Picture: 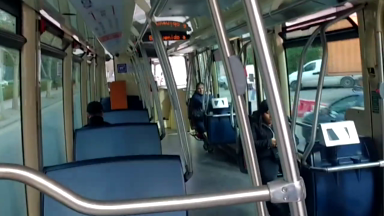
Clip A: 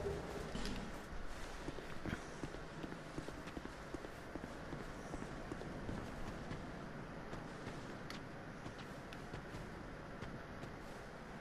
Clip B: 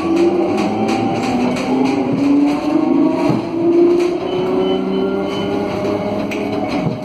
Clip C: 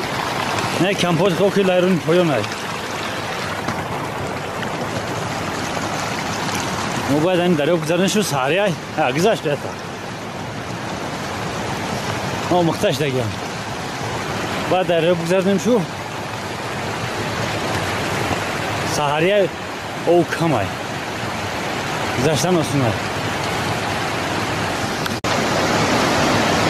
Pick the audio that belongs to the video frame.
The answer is B